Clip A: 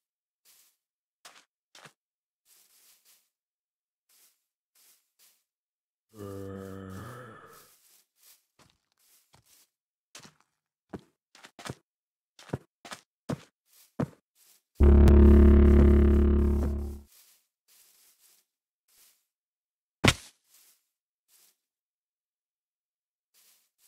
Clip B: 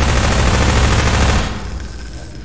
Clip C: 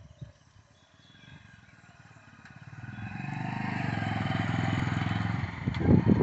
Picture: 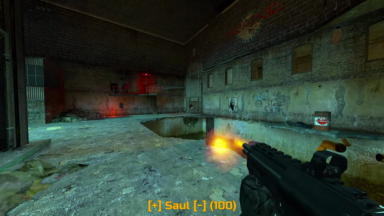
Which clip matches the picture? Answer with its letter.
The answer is B